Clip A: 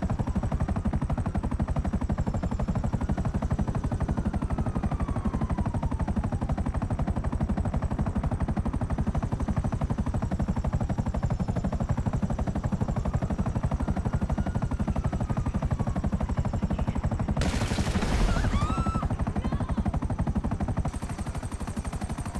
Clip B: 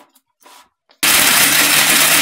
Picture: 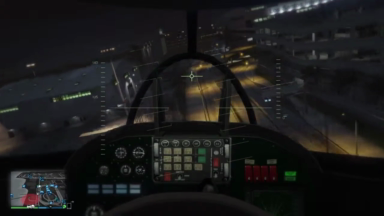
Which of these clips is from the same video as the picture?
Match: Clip A